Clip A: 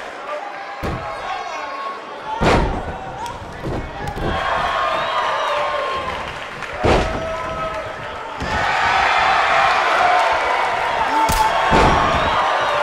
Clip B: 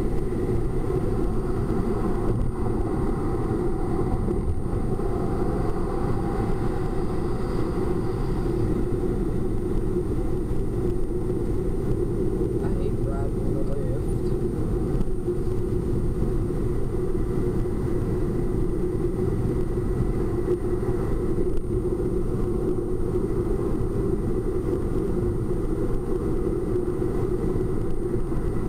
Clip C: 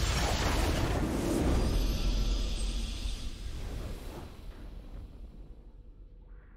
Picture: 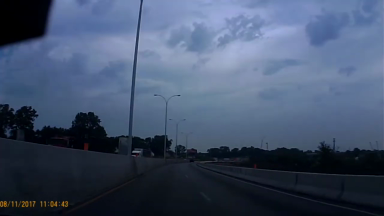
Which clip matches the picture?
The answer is B